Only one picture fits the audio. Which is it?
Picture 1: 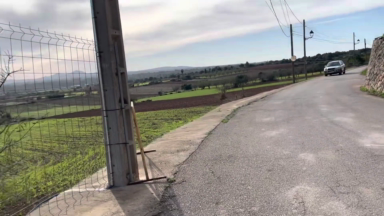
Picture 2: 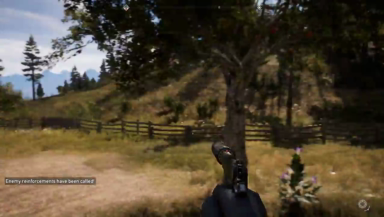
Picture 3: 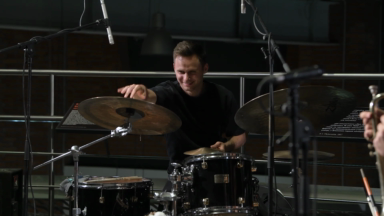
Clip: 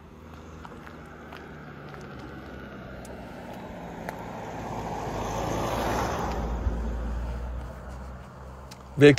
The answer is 1